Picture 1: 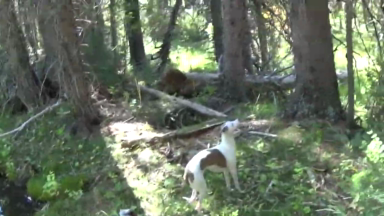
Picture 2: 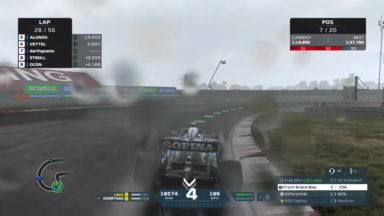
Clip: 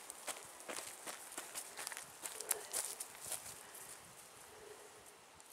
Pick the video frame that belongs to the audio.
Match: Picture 1